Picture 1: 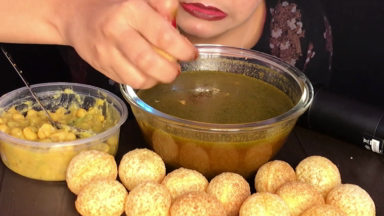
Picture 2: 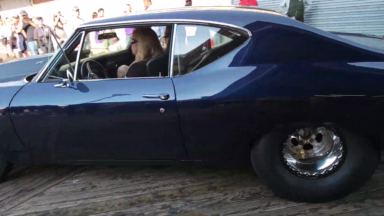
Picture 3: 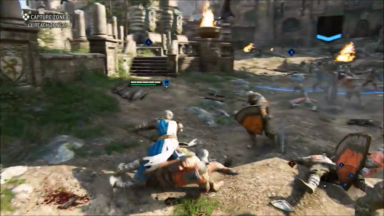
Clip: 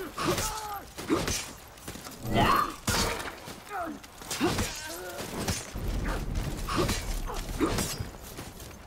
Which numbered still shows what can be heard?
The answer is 3